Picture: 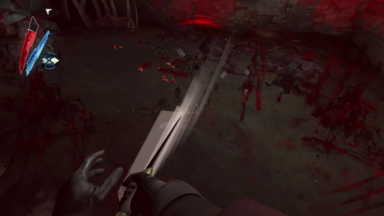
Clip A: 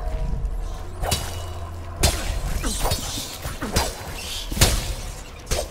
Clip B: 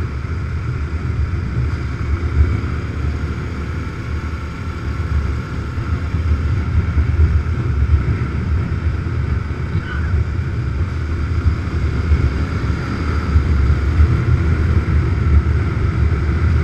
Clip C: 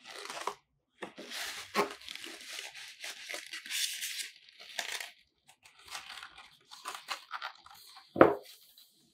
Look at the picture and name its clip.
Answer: A